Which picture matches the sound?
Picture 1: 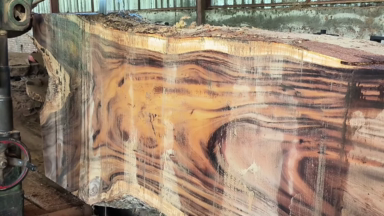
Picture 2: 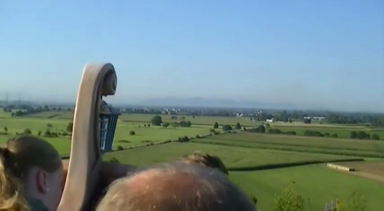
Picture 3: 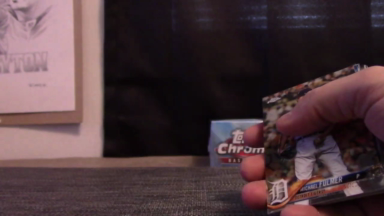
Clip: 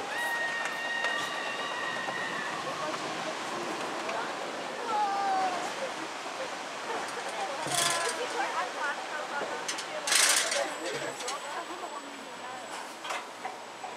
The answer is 2